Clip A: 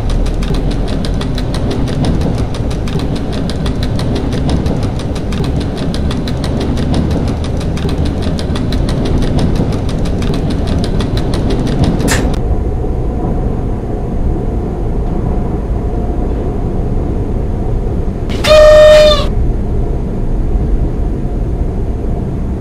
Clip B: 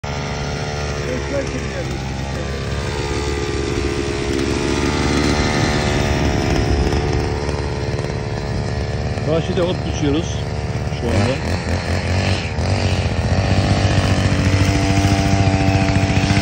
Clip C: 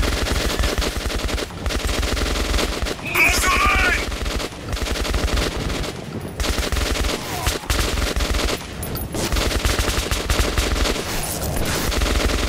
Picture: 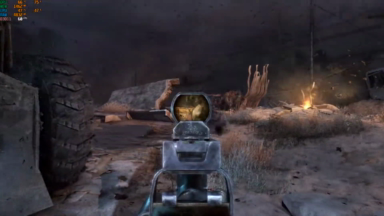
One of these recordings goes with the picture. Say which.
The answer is C